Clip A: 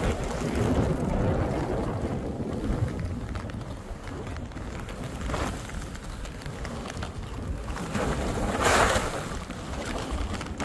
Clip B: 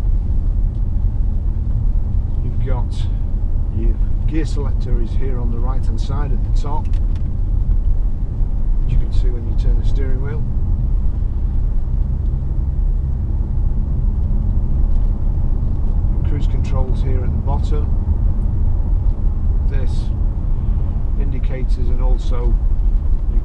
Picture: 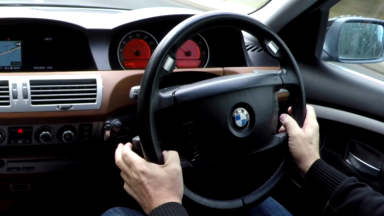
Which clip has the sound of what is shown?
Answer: B